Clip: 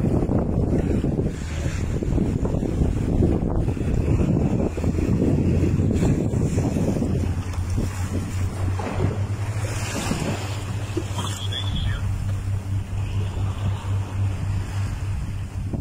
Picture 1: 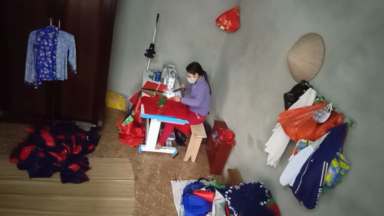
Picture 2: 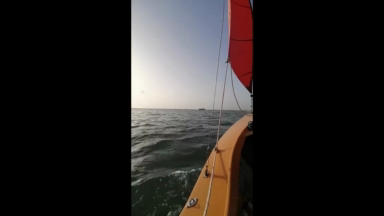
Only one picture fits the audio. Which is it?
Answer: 2